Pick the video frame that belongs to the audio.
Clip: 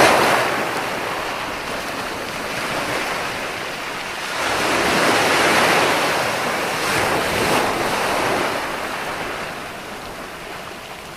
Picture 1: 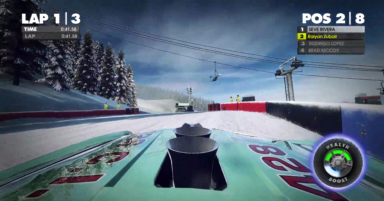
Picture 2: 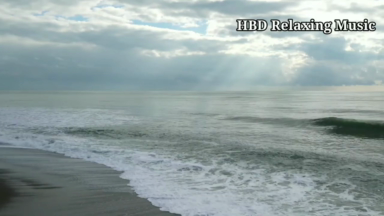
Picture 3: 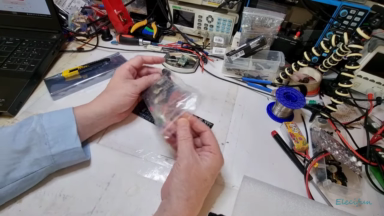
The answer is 2